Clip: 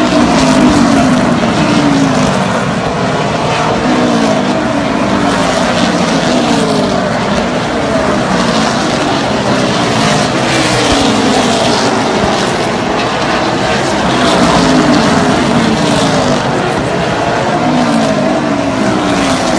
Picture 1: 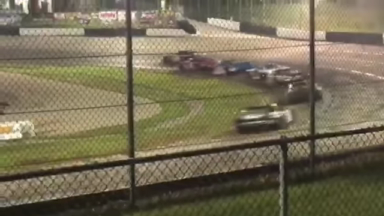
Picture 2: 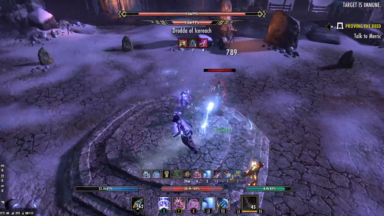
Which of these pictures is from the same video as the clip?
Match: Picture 1